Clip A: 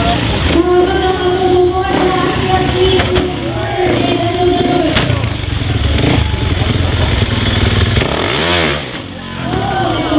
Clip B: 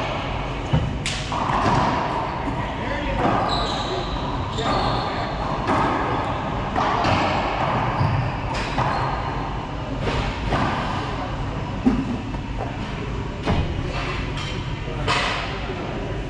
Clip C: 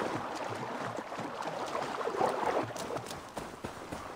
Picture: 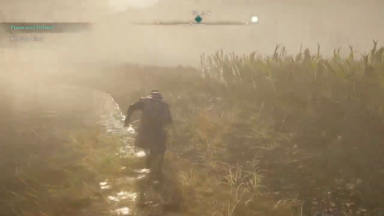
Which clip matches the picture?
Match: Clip C